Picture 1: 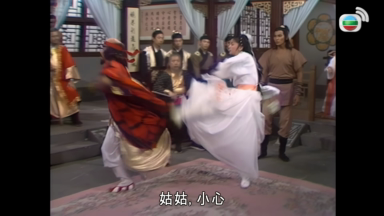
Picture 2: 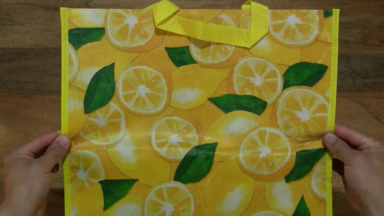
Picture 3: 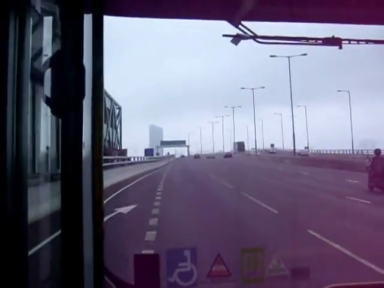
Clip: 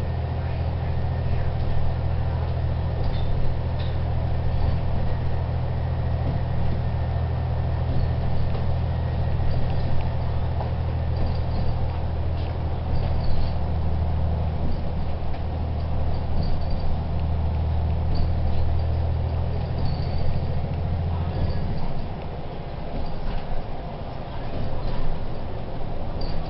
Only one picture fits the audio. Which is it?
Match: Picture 3